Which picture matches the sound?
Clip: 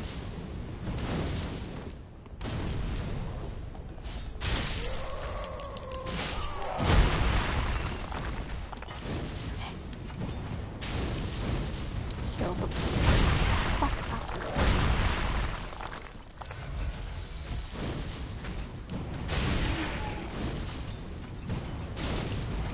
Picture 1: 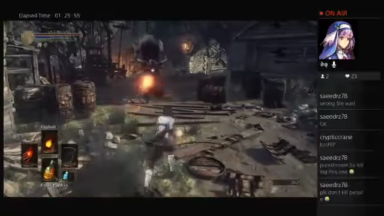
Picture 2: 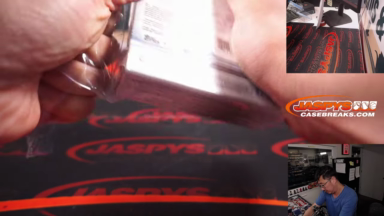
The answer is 1